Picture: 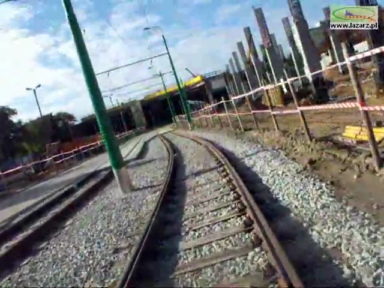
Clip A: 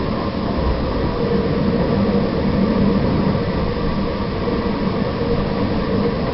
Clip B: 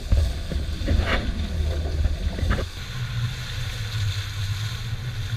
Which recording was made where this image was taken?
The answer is A